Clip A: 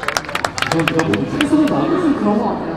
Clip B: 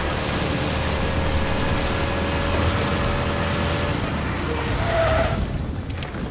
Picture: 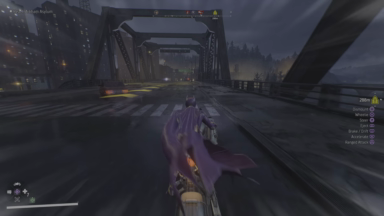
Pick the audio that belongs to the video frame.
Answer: B